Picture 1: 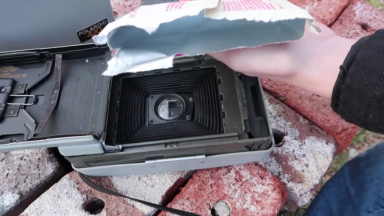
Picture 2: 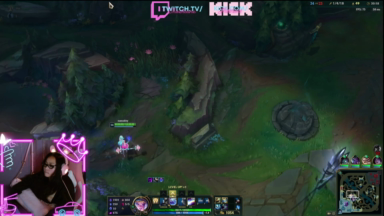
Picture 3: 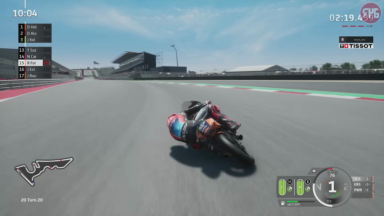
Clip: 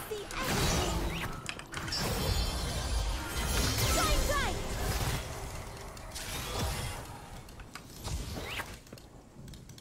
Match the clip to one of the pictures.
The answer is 2